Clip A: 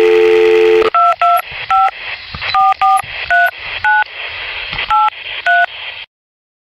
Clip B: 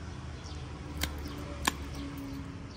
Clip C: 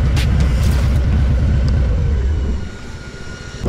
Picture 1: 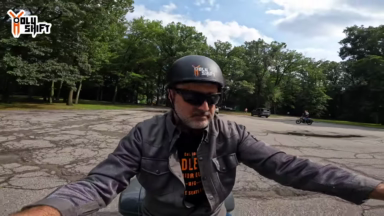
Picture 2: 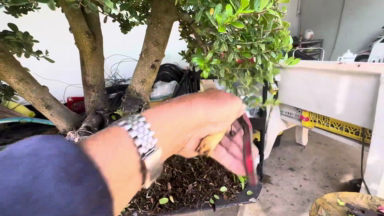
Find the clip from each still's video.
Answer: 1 C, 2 B